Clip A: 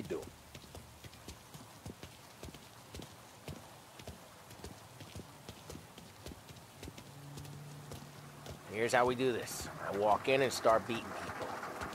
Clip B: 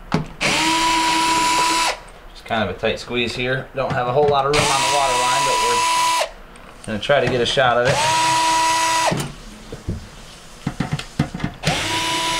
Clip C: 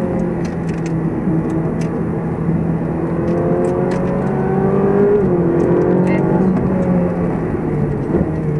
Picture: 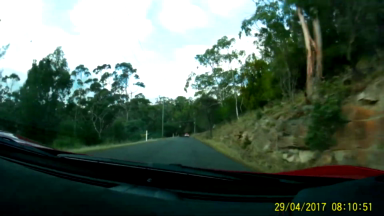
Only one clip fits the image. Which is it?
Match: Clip C